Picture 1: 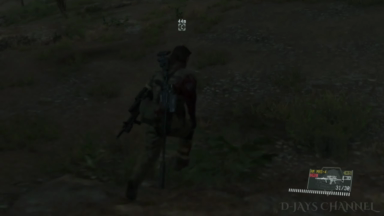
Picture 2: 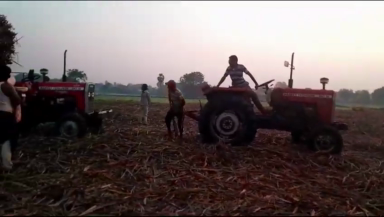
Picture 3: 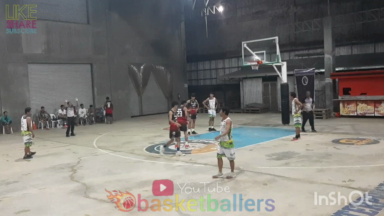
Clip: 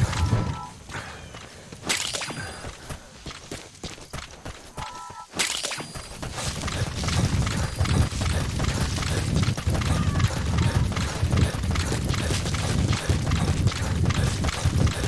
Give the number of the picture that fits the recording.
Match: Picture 1